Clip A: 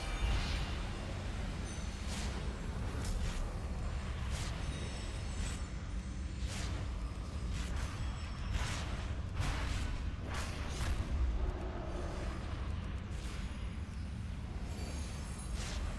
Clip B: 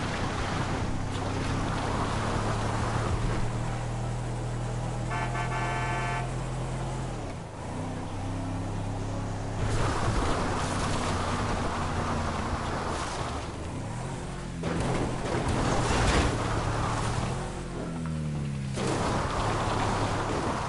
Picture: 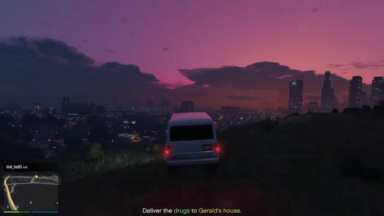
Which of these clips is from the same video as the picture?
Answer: B